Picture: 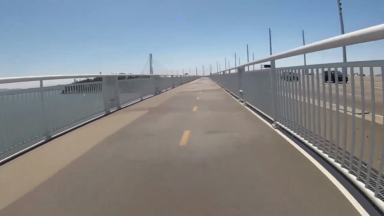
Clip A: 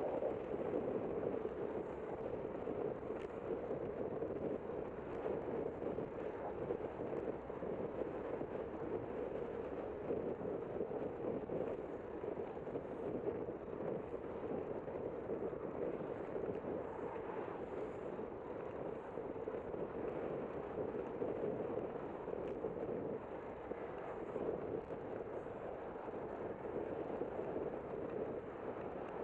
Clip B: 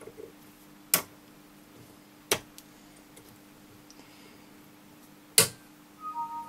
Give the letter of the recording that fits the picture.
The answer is A